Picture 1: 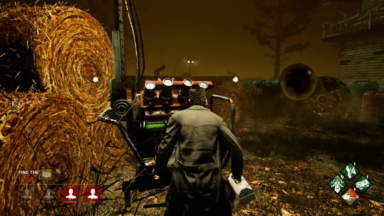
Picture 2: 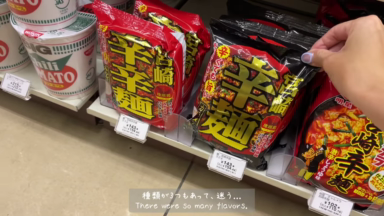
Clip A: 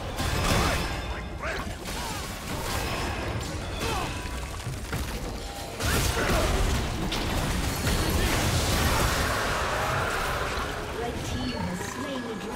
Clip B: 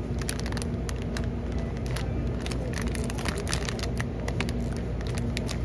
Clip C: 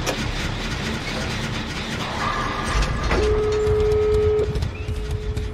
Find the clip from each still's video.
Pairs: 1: C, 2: B